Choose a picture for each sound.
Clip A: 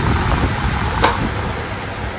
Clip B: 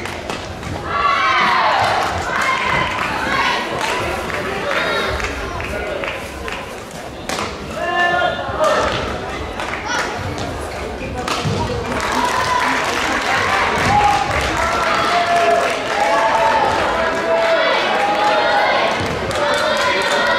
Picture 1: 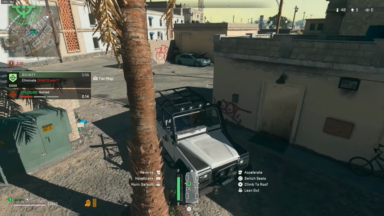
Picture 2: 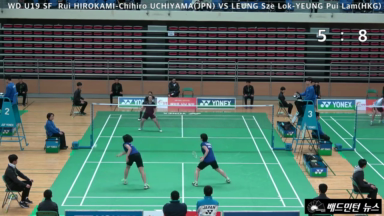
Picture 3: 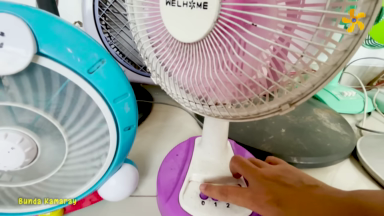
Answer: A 3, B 2